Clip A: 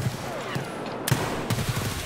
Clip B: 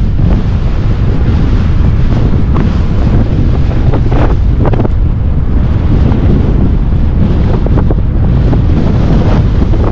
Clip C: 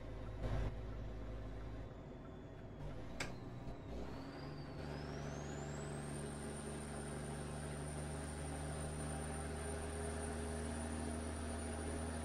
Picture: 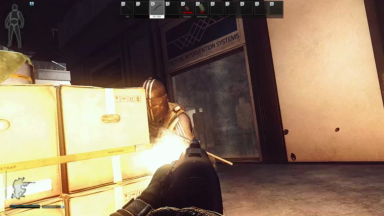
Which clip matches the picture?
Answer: A